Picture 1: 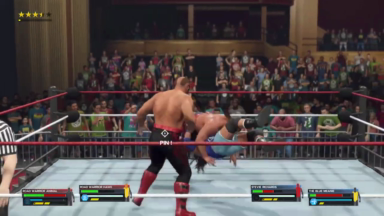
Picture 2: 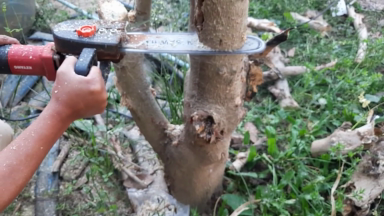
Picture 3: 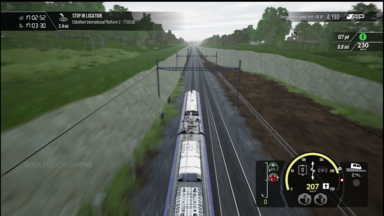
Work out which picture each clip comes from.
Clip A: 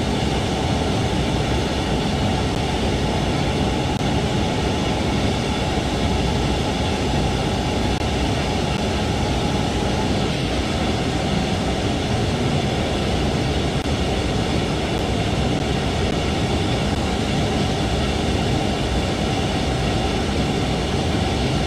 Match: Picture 3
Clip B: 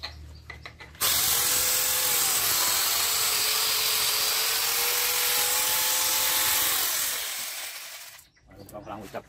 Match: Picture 2